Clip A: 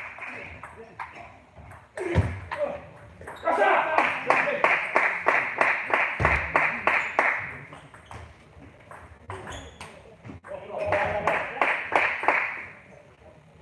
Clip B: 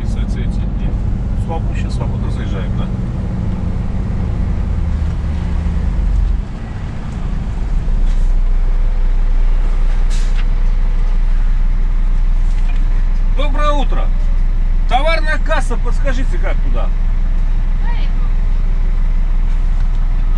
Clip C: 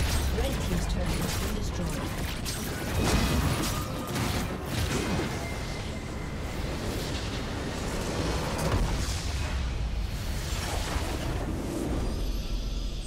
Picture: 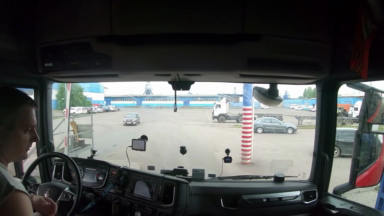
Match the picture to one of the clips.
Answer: B